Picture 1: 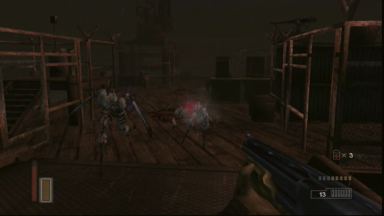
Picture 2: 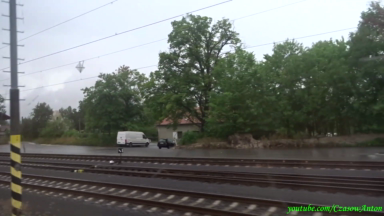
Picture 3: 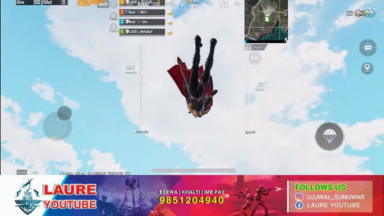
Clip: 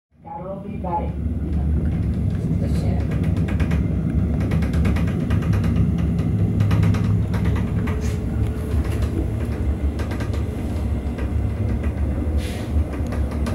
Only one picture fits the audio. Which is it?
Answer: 2